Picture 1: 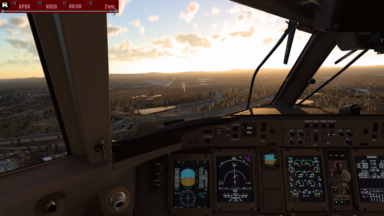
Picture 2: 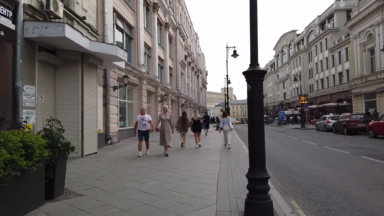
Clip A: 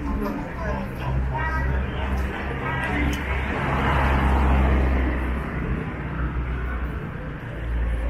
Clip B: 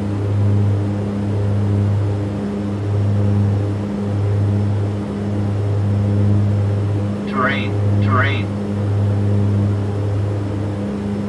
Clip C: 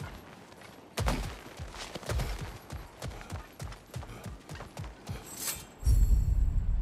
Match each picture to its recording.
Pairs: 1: B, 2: A